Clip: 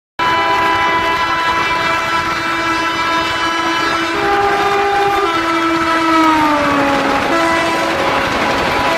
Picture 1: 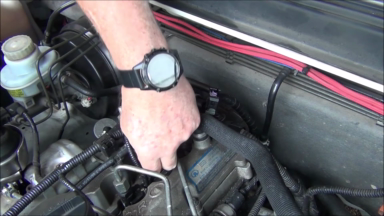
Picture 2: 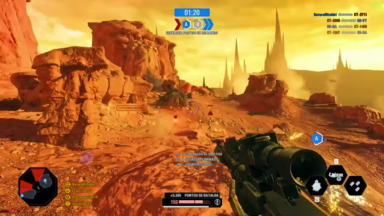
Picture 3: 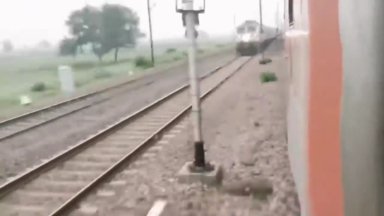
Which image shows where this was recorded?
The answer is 3